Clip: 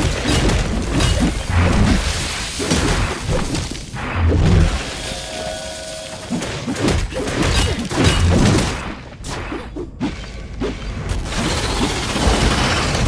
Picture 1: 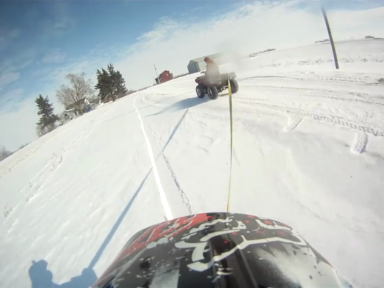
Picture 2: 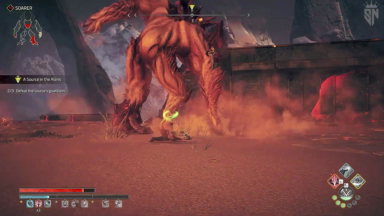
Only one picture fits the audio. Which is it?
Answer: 2